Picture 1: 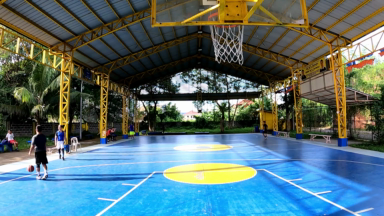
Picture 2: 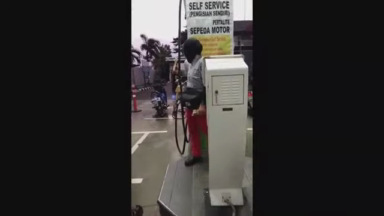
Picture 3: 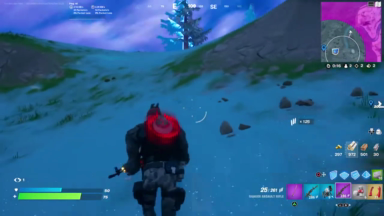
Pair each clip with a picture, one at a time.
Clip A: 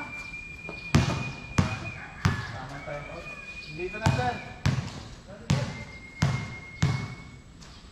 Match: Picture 1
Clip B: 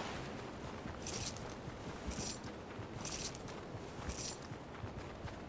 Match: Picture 3